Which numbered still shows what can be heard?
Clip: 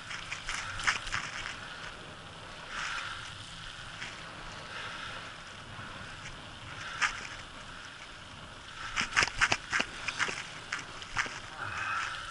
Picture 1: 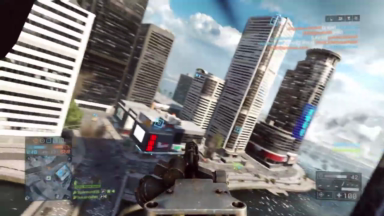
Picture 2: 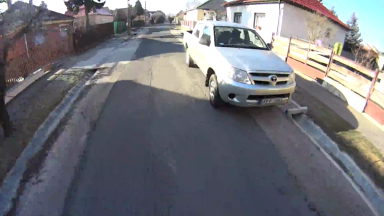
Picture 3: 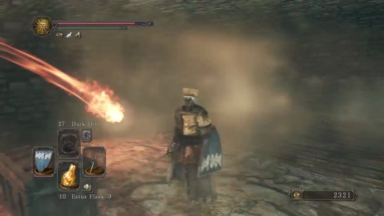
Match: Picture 2